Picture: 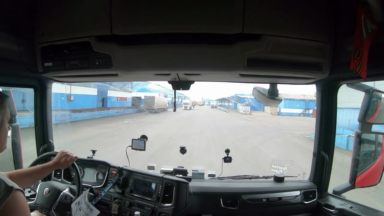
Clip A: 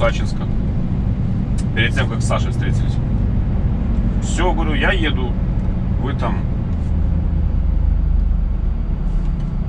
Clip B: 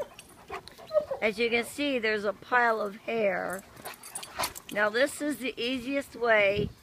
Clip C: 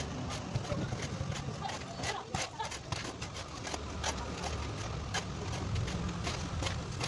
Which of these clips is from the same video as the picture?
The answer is A